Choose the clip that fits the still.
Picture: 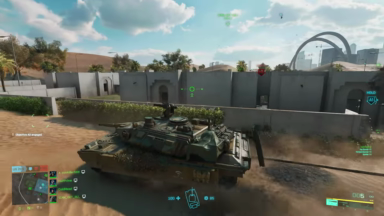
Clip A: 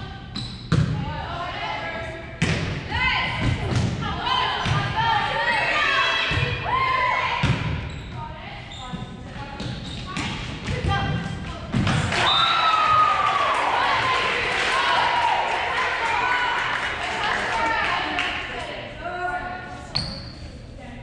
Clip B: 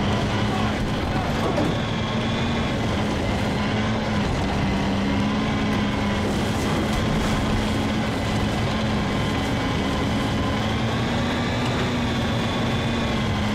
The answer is B